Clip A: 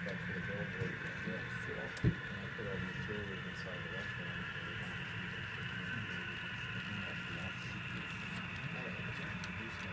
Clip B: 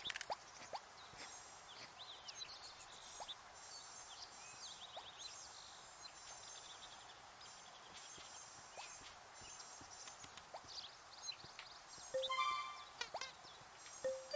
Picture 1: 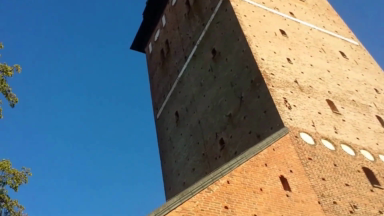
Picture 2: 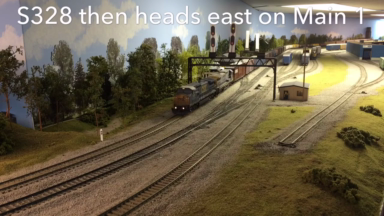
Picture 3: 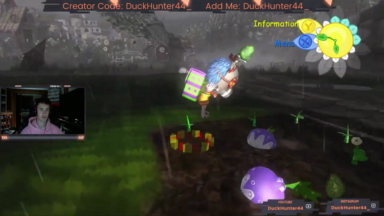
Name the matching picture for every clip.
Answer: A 2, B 3